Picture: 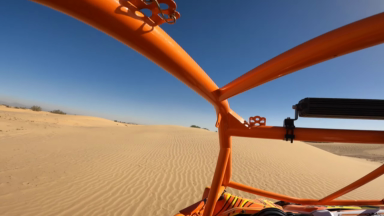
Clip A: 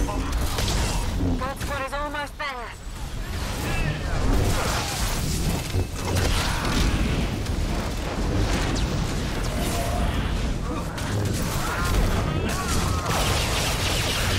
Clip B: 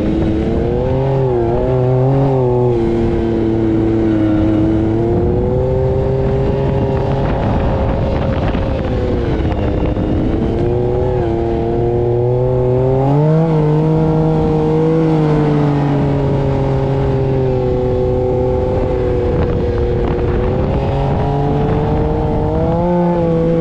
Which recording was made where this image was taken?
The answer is B